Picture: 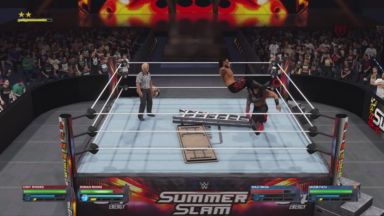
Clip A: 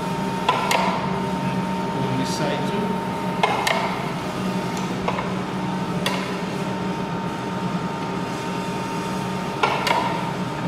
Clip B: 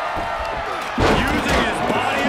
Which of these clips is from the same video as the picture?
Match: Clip B